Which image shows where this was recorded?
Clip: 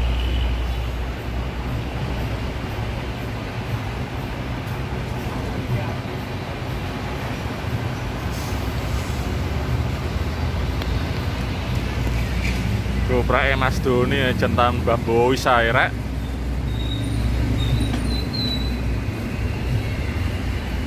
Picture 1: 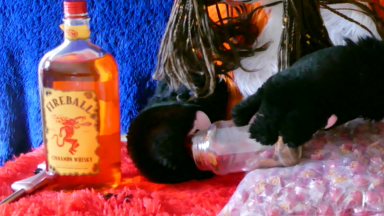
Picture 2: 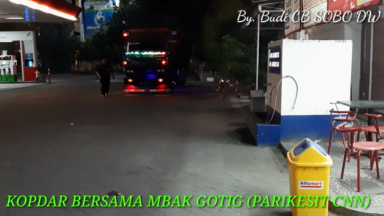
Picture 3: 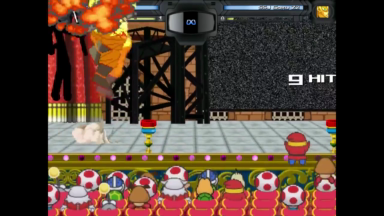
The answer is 2